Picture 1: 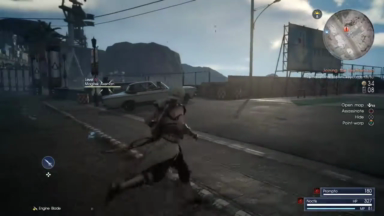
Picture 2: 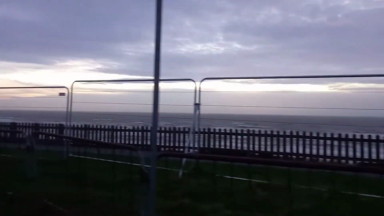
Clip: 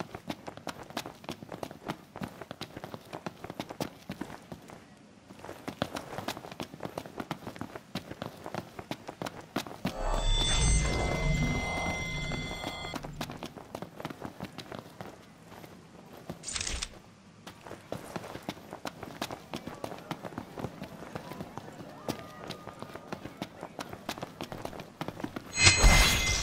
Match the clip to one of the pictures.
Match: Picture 1